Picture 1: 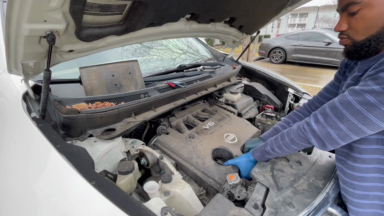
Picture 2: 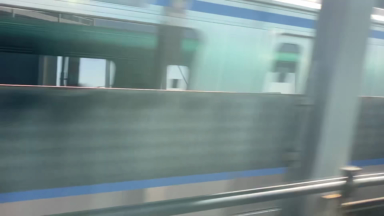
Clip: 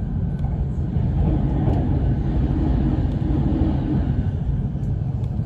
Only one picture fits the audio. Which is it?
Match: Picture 2